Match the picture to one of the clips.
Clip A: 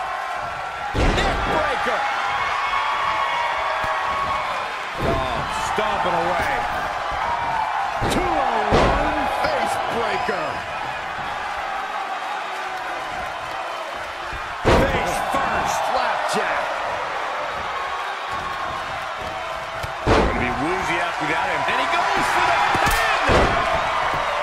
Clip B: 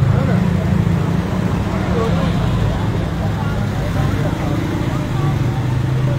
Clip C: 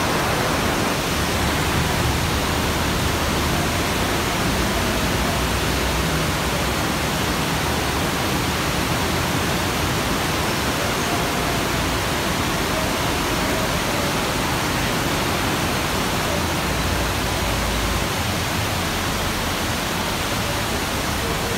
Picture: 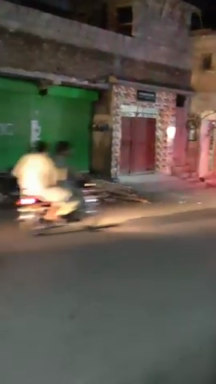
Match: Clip B